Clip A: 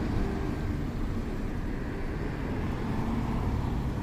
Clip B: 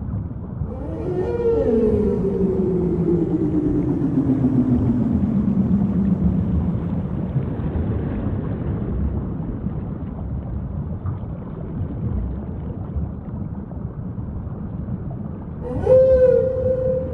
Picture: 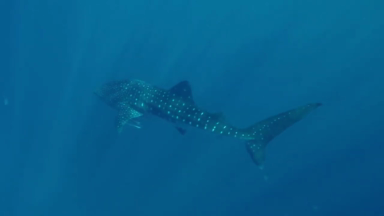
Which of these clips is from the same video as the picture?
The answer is B